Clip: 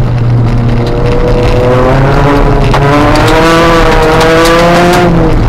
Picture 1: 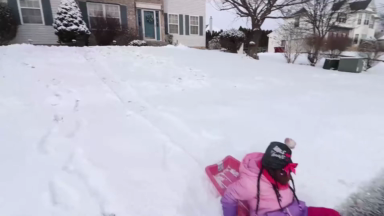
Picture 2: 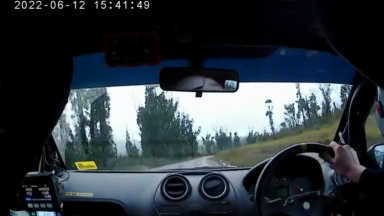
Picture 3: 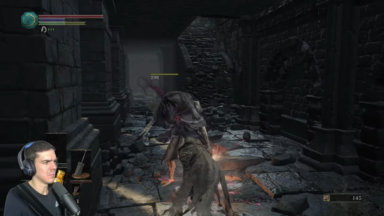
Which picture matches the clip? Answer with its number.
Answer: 2